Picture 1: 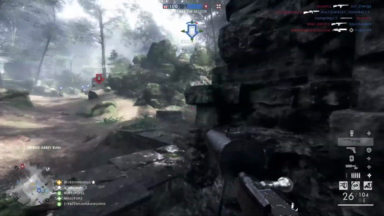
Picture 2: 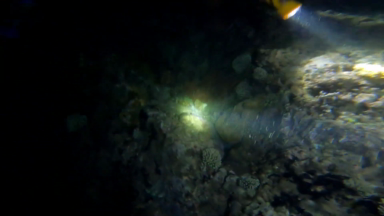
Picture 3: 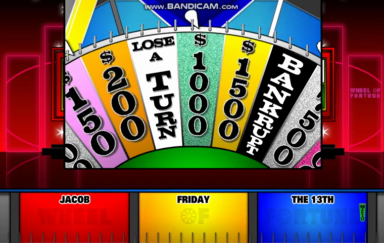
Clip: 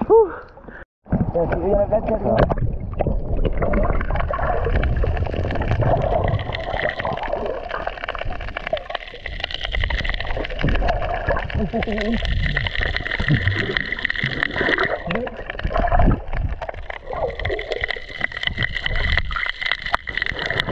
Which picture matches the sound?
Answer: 2